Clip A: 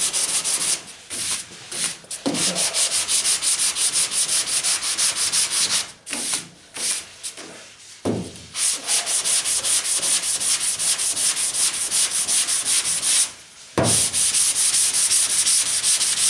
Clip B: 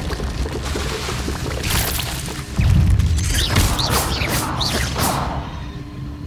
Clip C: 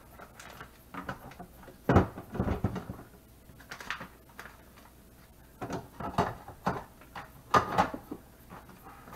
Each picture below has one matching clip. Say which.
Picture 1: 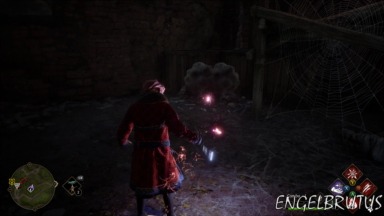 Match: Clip B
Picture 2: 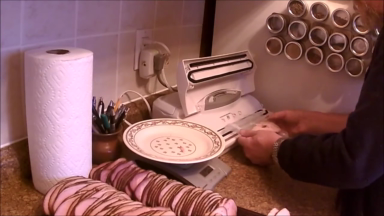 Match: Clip C